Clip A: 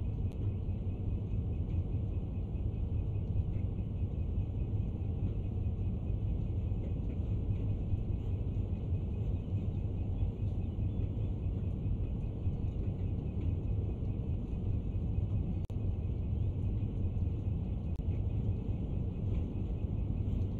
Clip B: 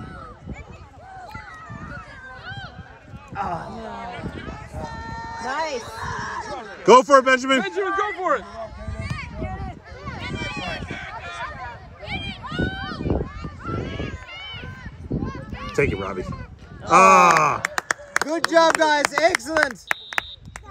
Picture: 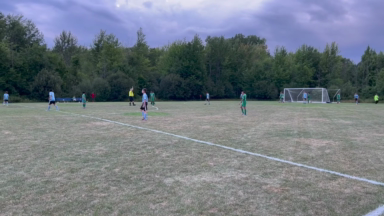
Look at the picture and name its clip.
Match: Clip B